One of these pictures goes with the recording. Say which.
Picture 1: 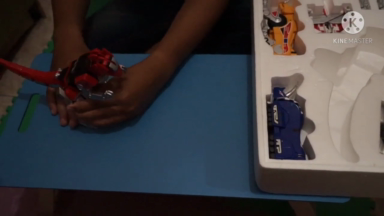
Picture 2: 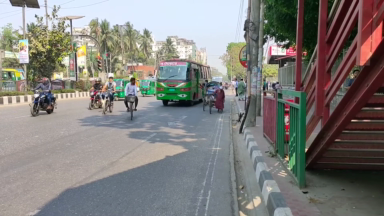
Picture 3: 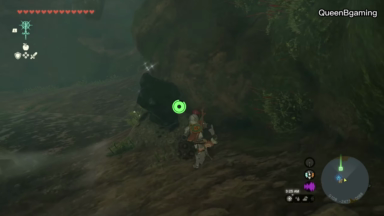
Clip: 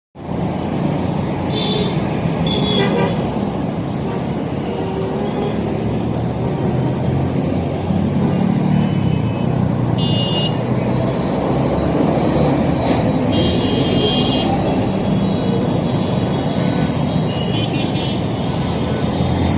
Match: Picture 2